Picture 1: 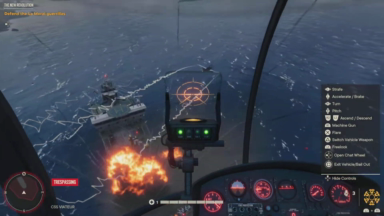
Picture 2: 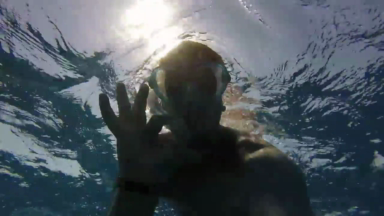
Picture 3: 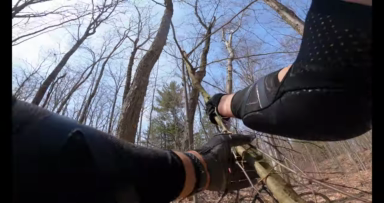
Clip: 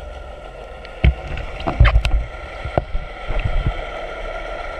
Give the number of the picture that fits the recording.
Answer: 2